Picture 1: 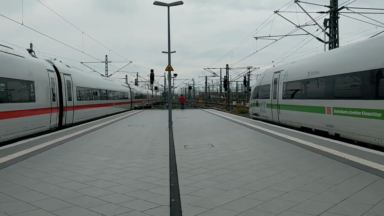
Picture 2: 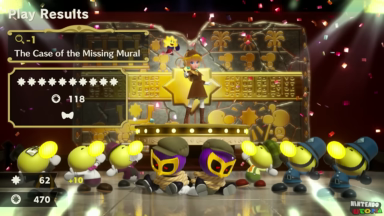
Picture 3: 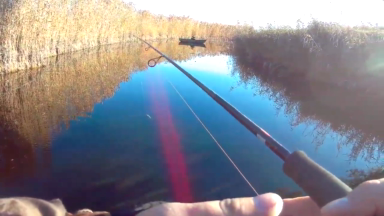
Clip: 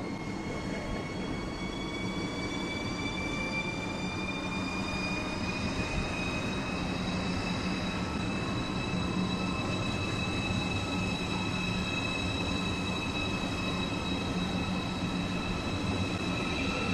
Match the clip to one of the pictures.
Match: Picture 1